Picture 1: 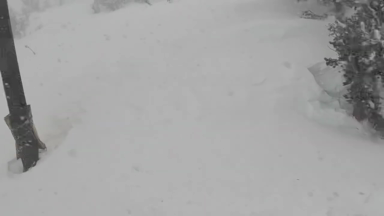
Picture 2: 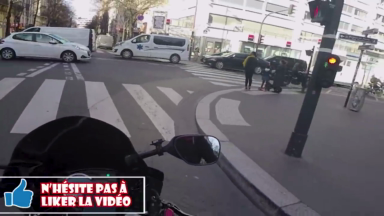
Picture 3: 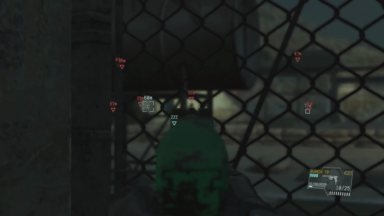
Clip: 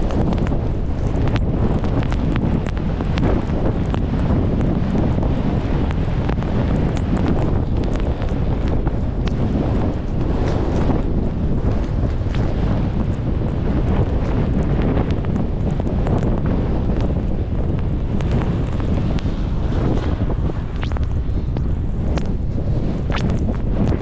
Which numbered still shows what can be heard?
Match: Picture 1